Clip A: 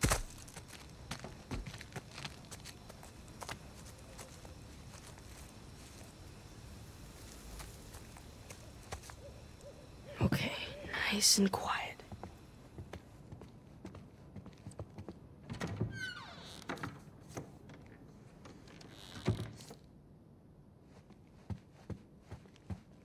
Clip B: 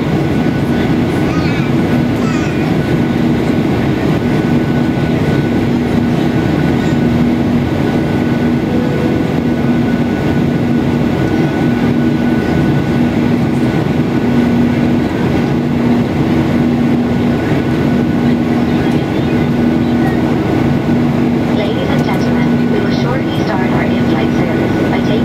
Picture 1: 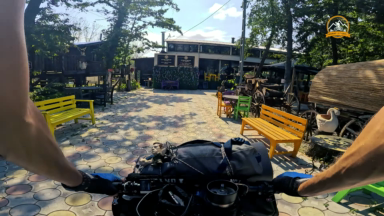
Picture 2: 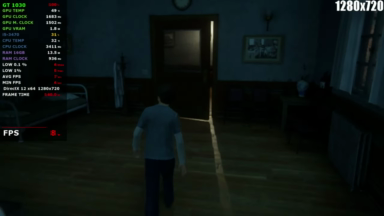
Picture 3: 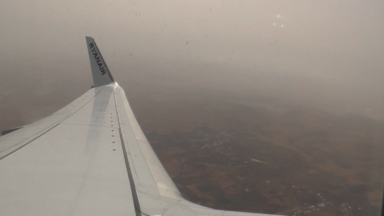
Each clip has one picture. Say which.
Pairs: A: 2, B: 3